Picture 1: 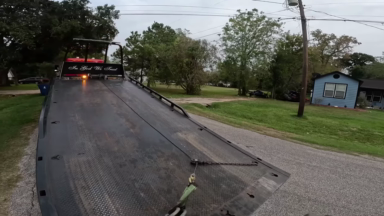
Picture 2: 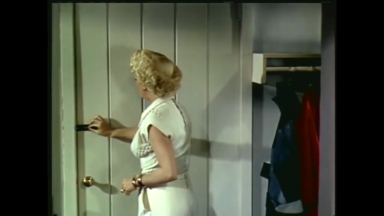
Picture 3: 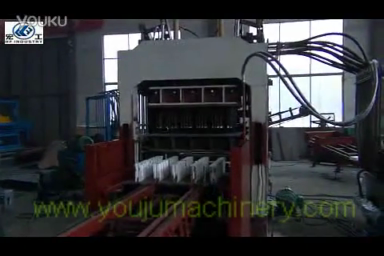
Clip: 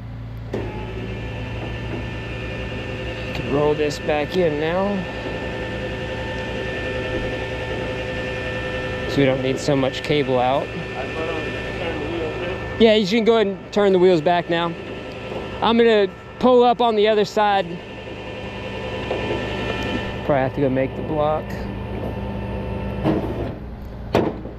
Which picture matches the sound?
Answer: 1